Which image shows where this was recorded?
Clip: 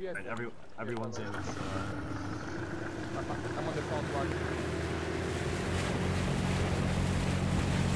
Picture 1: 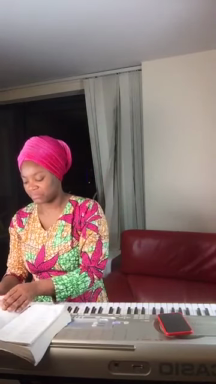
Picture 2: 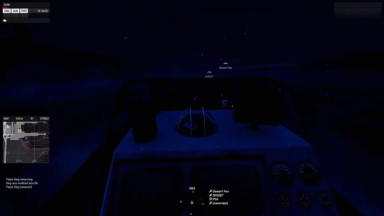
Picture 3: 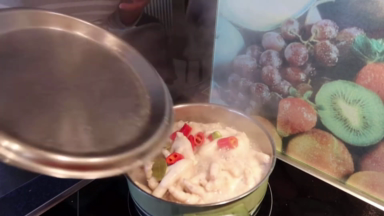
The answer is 2